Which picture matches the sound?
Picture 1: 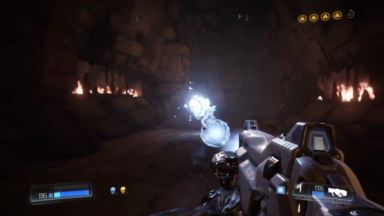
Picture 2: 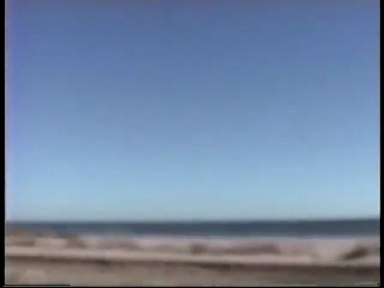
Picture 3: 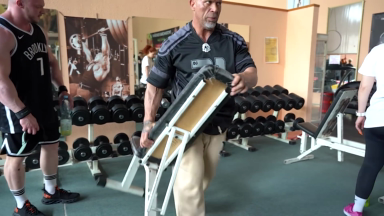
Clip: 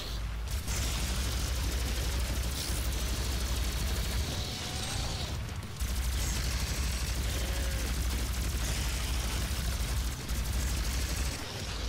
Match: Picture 1